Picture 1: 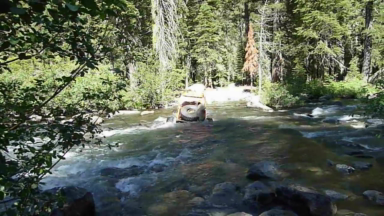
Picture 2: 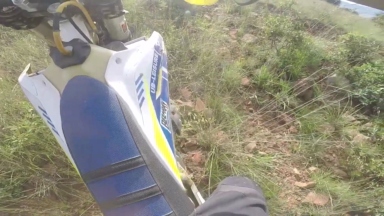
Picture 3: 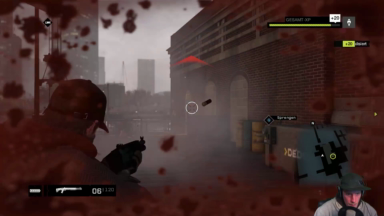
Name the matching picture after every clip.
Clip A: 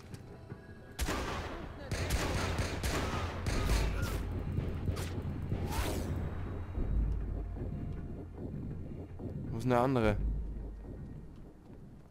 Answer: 3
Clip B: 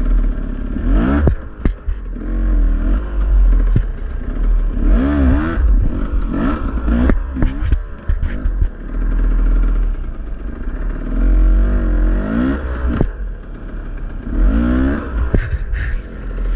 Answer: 2